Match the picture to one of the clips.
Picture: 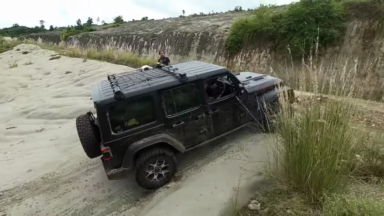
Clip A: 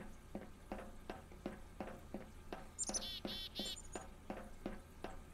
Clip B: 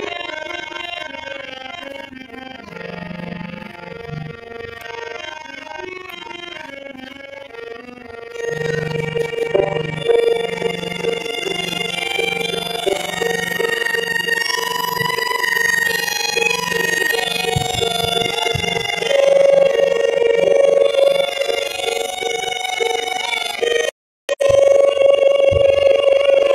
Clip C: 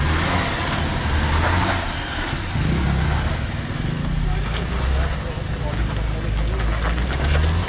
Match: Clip C